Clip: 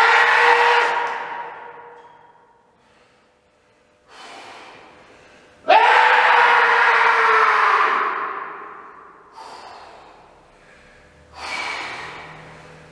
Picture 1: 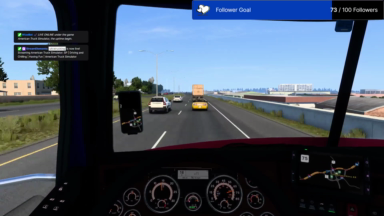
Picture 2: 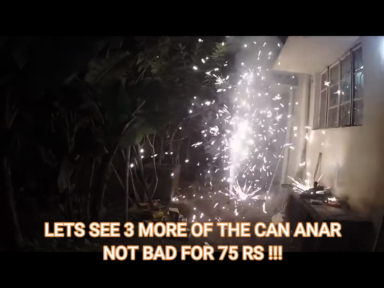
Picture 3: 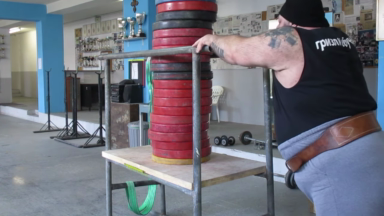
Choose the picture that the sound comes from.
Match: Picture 3